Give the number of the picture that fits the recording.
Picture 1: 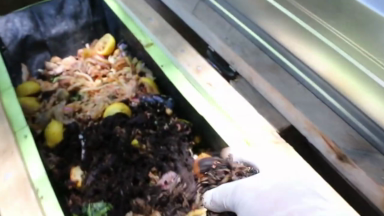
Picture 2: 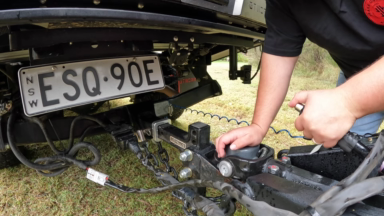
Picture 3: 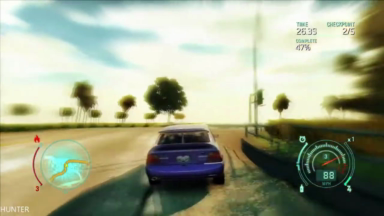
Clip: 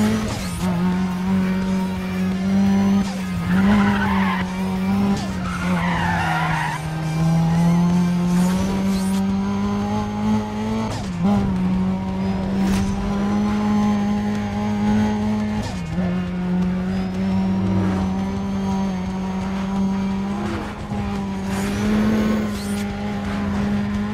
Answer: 3